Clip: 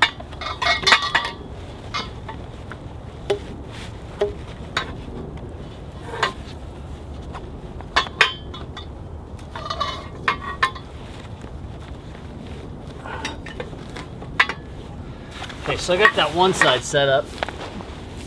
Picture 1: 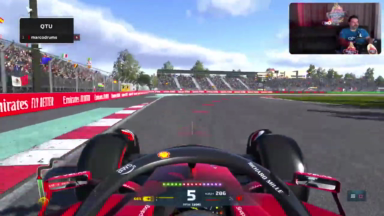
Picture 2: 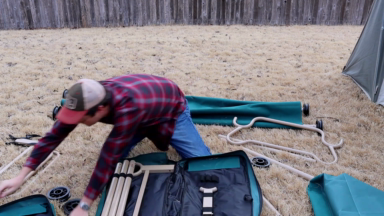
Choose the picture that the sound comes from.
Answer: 2